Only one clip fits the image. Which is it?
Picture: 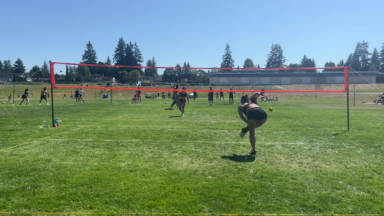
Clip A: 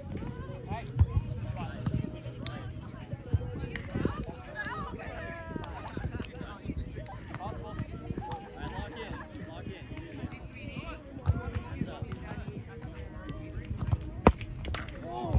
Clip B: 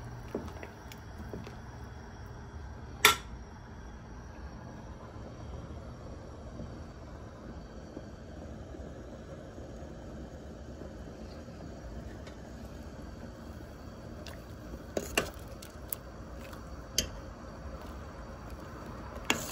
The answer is A